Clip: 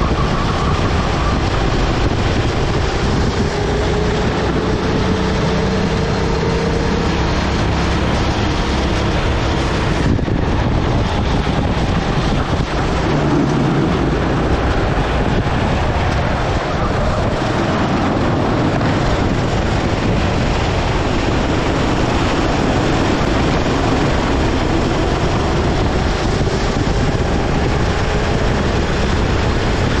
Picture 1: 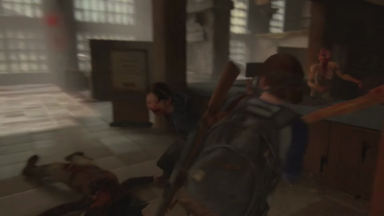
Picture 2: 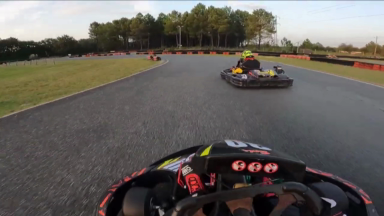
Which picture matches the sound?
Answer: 2